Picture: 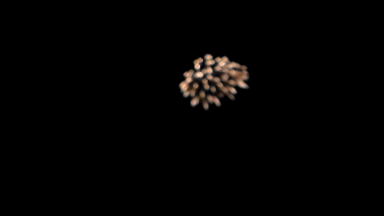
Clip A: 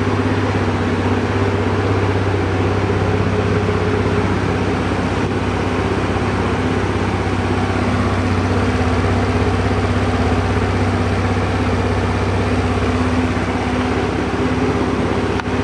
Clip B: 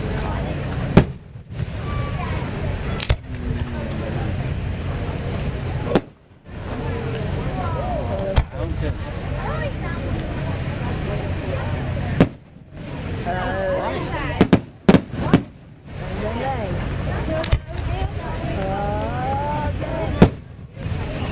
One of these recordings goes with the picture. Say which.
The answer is B